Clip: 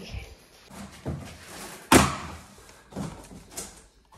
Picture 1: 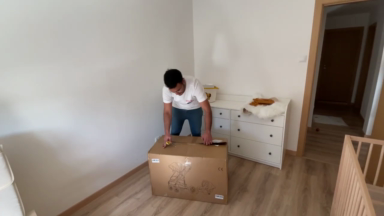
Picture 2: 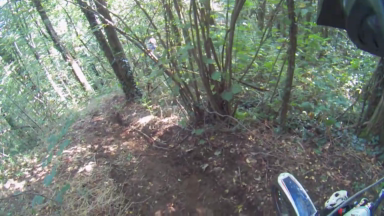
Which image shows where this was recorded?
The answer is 1